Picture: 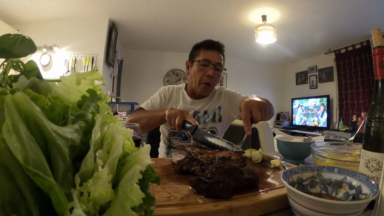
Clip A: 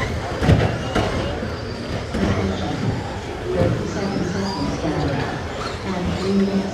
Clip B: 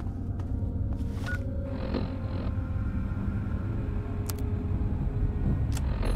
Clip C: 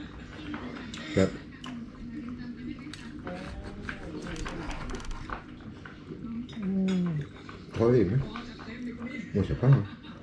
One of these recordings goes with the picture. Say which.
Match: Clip C